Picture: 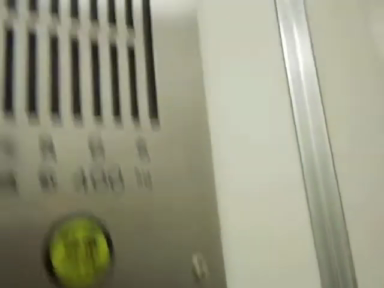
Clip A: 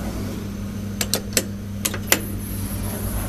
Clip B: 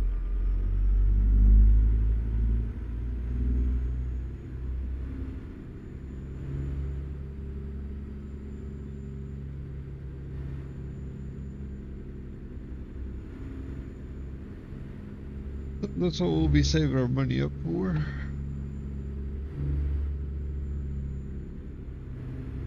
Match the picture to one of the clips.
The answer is A